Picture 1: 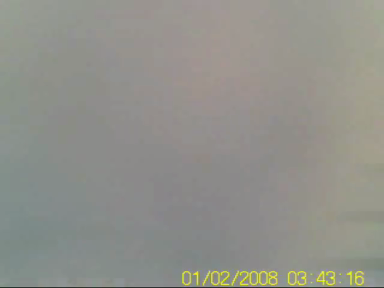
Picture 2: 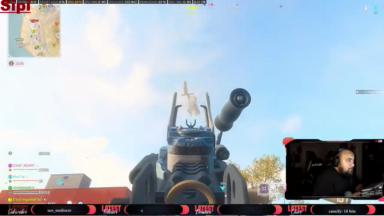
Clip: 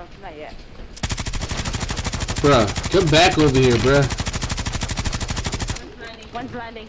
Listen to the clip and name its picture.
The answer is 2